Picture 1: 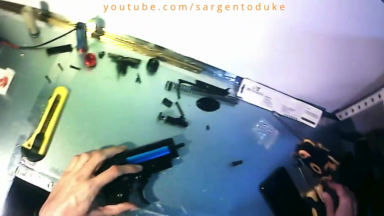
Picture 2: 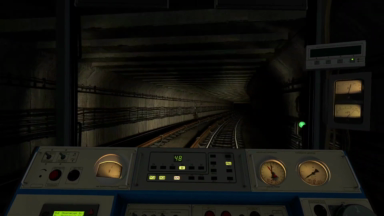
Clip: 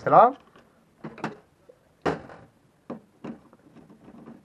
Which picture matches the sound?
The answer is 1